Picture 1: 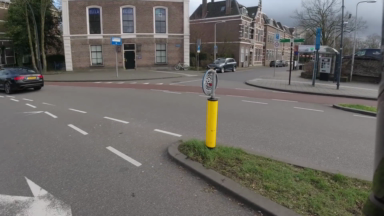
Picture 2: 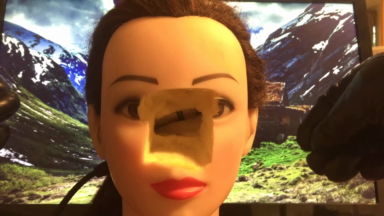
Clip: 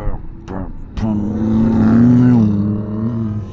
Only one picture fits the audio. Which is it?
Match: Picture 1